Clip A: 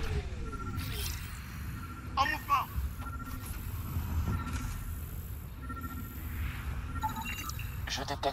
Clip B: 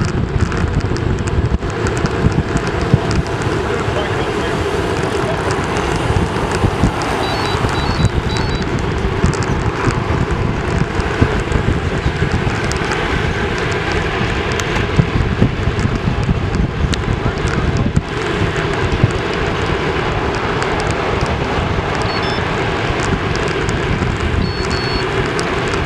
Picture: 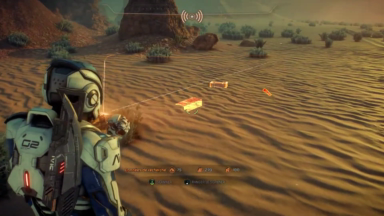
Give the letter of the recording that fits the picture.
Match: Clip A